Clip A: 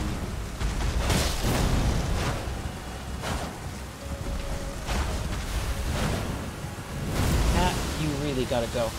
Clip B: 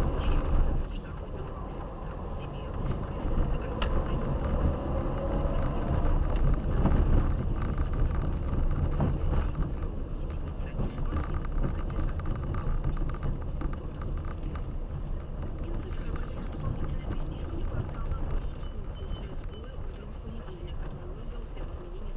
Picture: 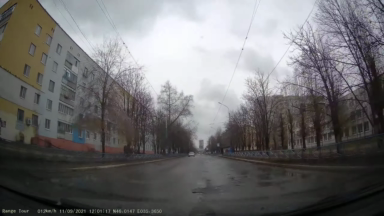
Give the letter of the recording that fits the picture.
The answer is B